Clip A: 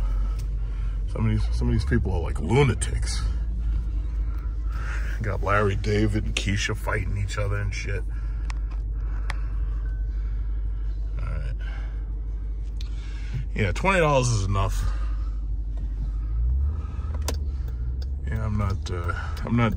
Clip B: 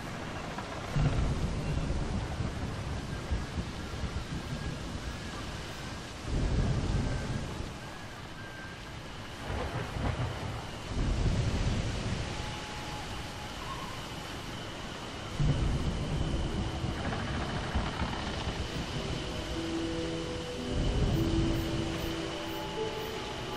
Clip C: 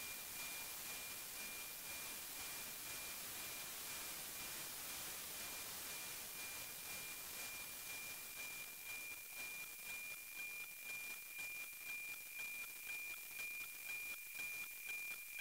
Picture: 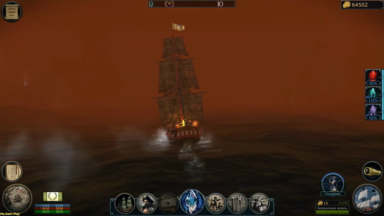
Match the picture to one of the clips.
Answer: B